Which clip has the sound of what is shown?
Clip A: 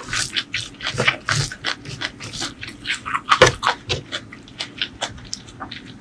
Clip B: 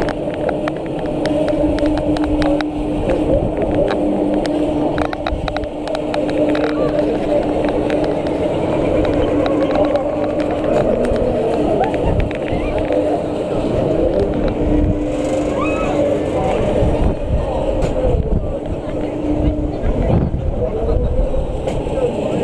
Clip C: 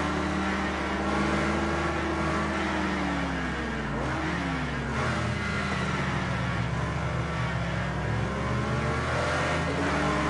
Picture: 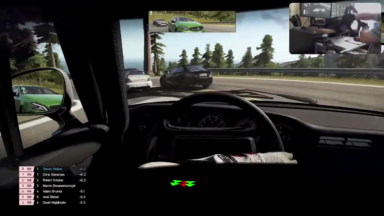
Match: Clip C